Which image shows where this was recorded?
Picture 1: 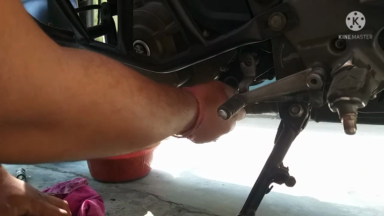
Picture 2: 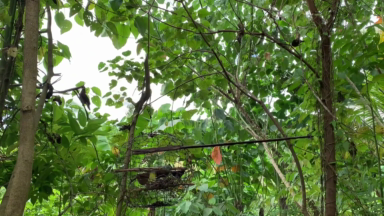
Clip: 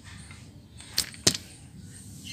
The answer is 1